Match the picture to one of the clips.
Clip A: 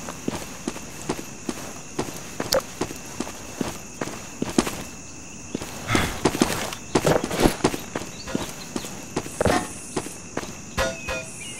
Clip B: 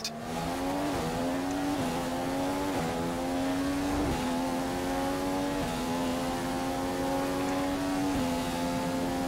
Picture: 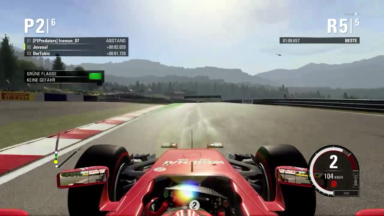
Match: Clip B